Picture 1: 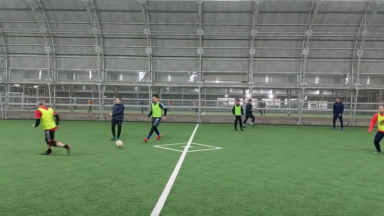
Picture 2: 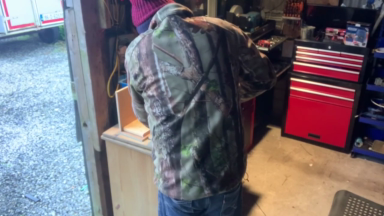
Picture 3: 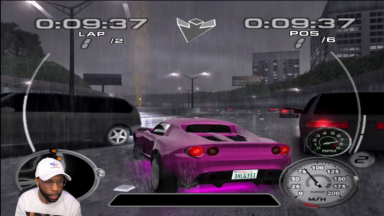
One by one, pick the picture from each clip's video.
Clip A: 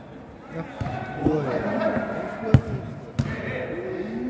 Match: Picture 1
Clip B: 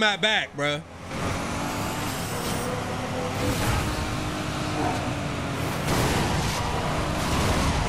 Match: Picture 3